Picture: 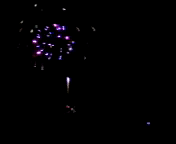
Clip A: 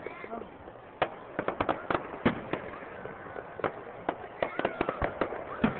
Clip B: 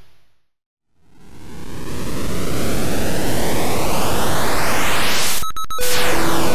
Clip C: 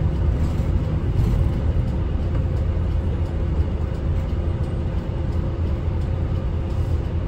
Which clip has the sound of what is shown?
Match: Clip A